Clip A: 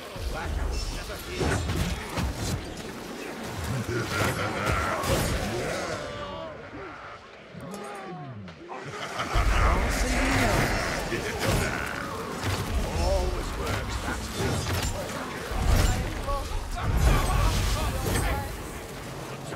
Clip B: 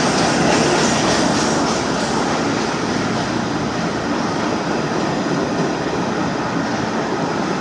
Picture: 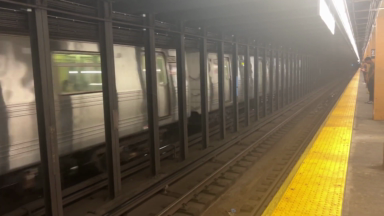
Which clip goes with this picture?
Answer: B